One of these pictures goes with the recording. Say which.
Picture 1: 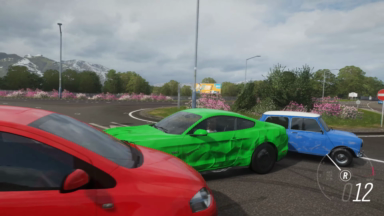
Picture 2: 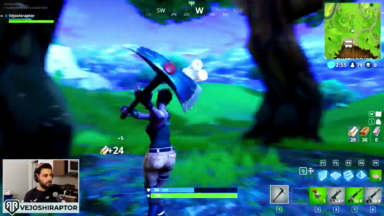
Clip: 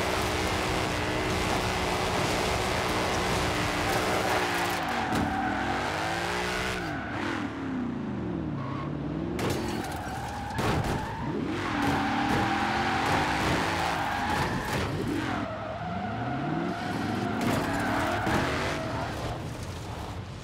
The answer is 1